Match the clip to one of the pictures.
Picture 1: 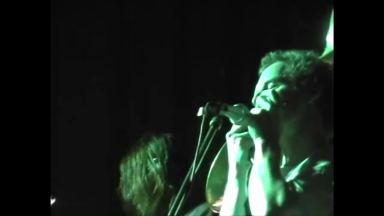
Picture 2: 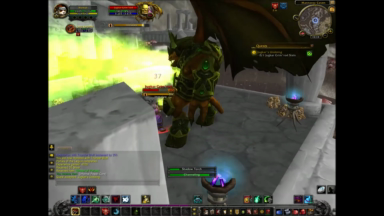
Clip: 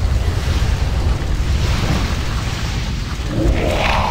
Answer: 2